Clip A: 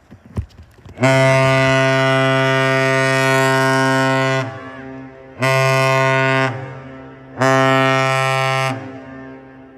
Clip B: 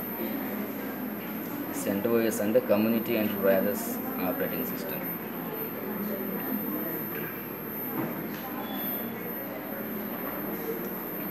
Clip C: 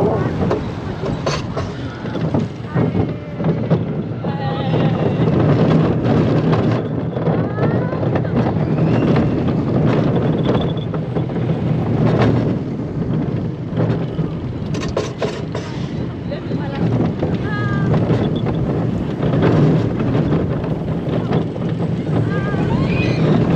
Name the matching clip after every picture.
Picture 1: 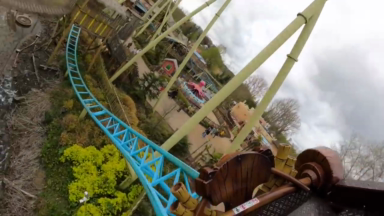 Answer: C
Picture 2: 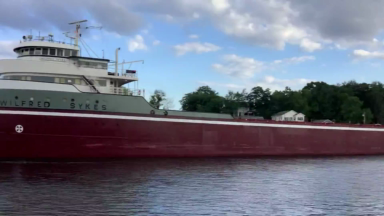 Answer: A